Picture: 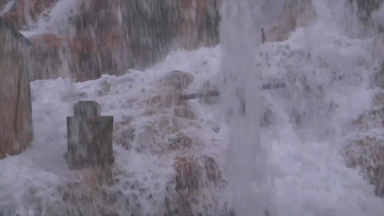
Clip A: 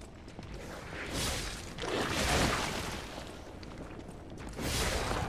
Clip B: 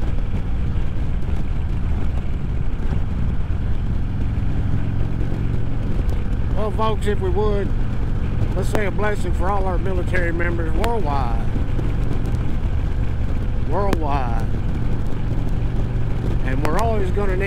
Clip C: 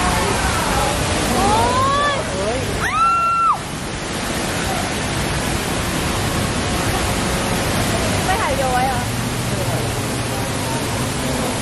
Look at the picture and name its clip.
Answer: C